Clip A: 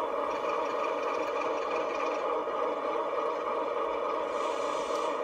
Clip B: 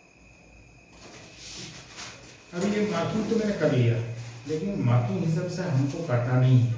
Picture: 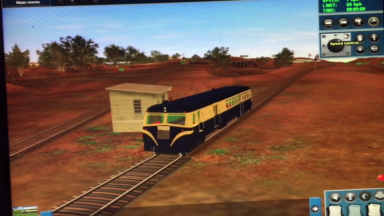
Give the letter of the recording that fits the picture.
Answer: A